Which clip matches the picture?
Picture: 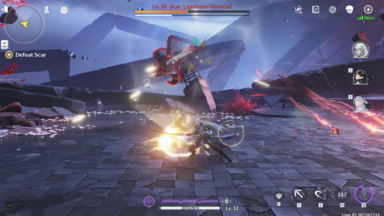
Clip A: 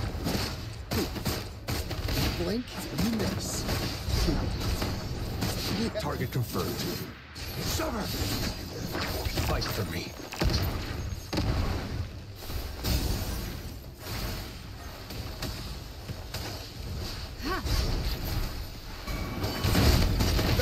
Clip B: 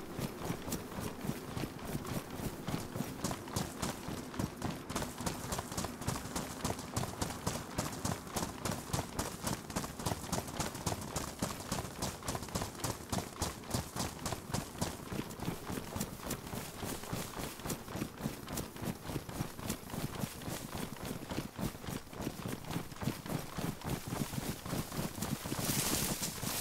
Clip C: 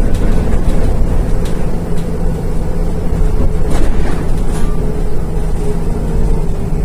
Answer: A